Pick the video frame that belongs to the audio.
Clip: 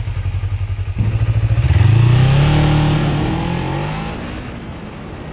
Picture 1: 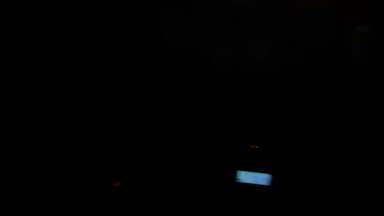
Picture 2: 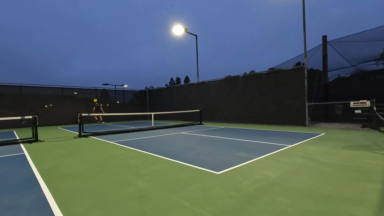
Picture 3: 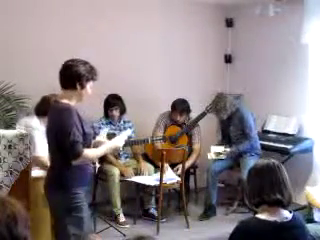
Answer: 1